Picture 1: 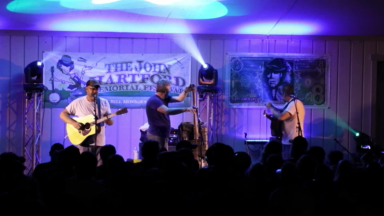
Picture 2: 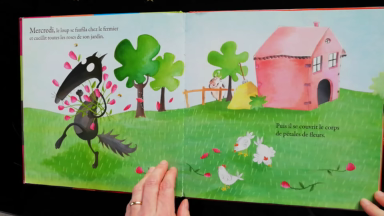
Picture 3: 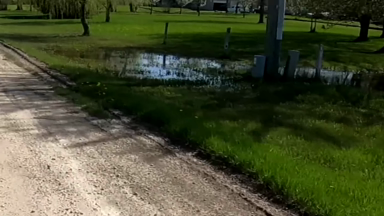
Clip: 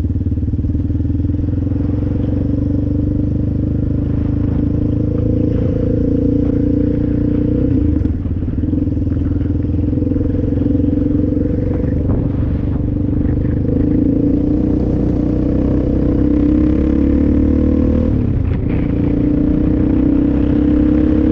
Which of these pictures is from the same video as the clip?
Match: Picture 3